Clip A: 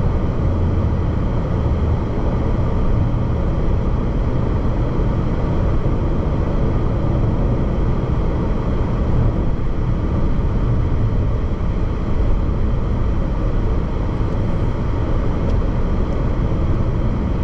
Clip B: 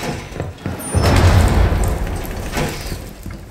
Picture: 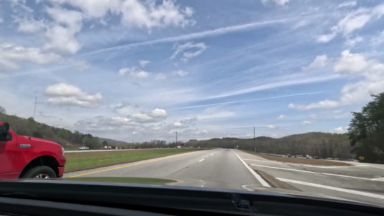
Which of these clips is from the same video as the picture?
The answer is A